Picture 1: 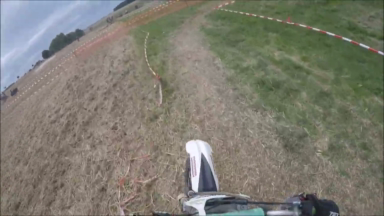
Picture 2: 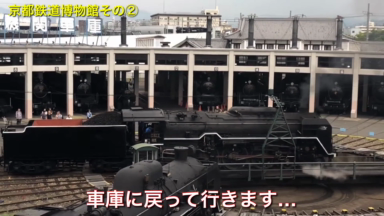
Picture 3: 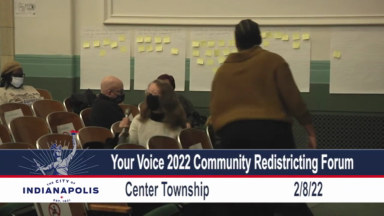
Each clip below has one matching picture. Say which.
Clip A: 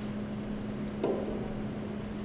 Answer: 3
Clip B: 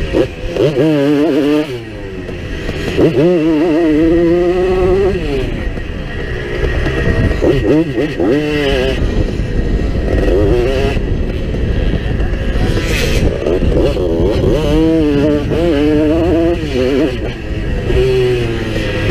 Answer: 1